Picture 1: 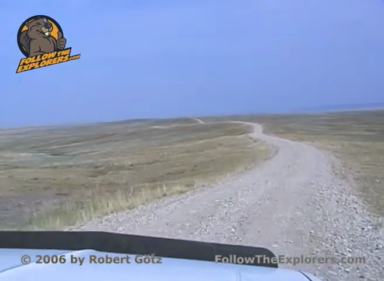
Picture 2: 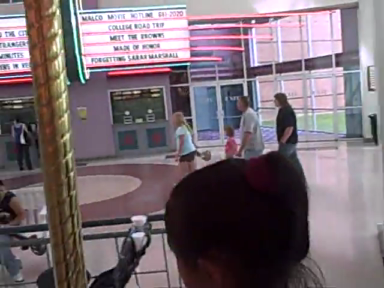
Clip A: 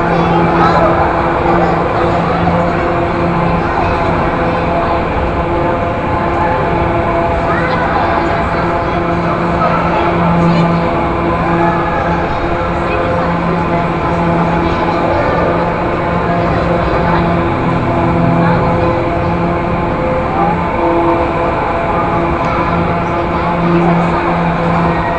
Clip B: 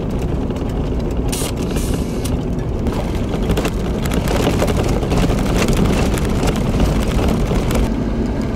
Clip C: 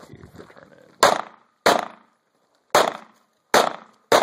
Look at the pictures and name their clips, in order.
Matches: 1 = B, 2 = A